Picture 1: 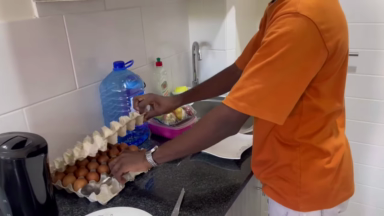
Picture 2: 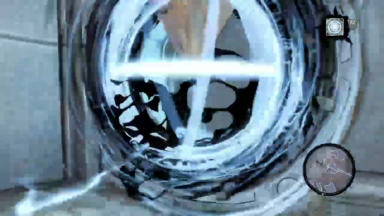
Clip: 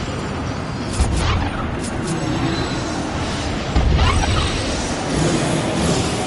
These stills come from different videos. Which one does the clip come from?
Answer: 2